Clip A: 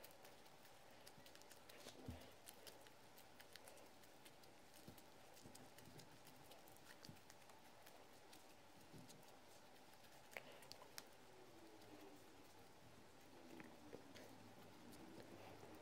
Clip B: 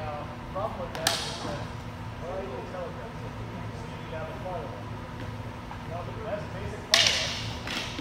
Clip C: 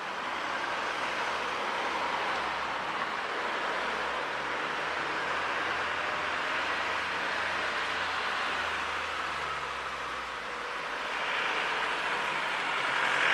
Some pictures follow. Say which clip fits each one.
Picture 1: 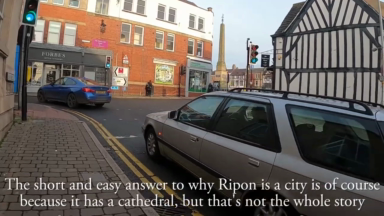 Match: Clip C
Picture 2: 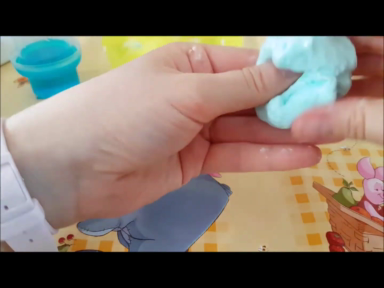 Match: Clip A